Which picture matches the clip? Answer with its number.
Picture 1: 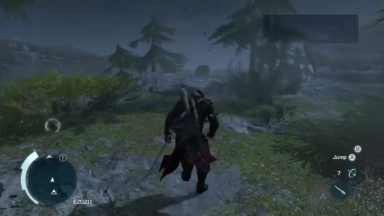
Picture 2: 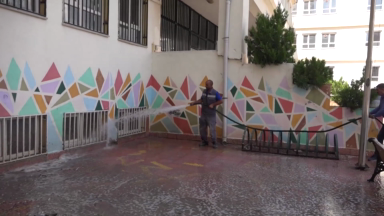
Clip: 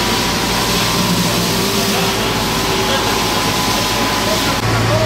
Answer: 2